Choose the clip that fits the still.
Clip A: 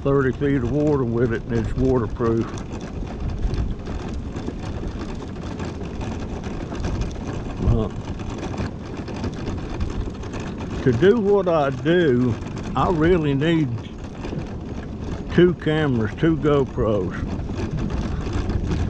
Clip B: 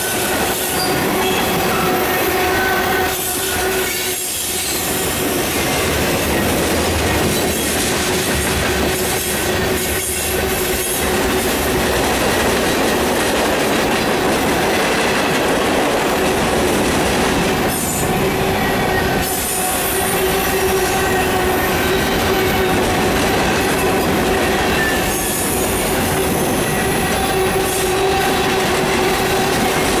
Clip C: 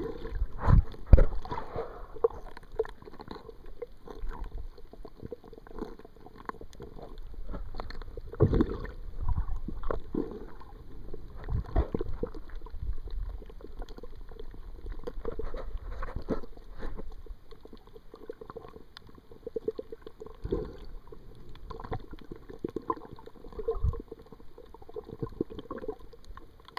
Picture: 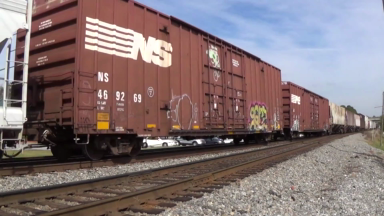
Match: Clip B